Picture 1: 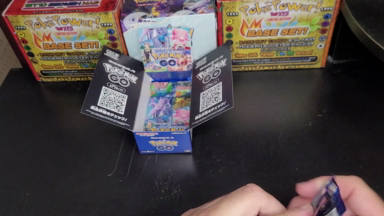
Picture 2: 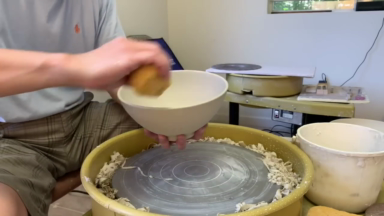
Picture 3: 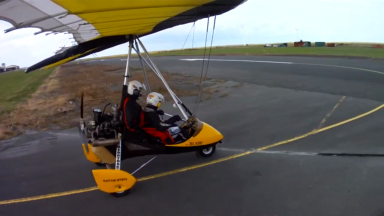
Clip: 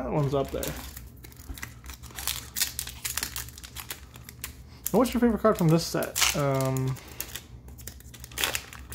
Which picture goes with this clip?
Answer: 1